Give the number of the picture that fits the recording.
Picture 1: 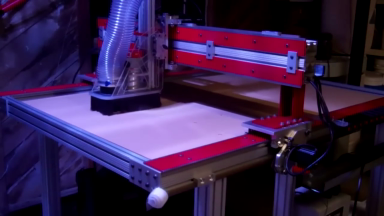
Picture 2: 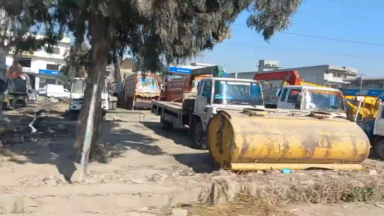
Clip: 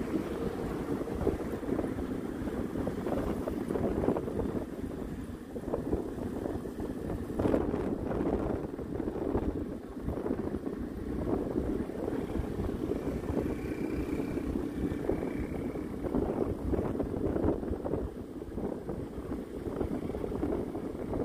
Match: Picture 2